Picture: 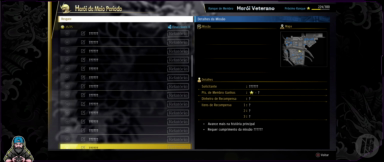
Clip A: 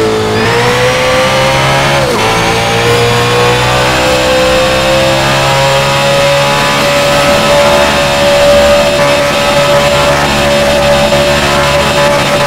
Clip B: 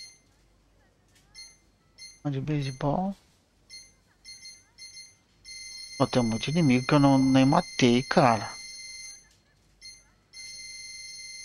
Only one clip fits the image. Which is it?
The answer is B